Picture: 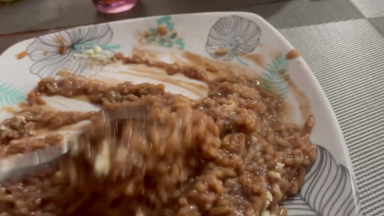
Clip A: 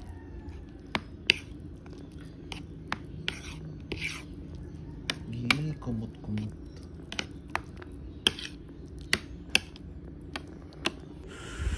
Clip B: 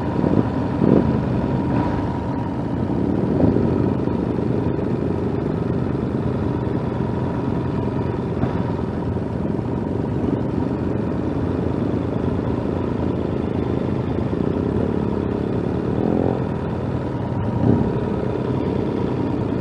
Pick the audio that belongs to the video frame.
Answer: A